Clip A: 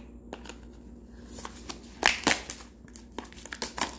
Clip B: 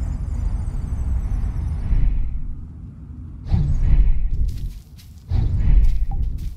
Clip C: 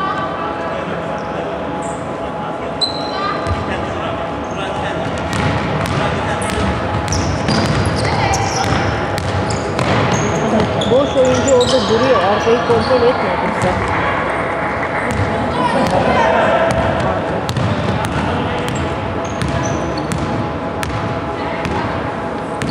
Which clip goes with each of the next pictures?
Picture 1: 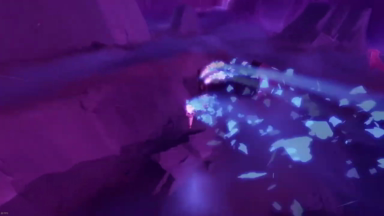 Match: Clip B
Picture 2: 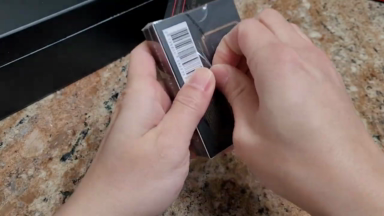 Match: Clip A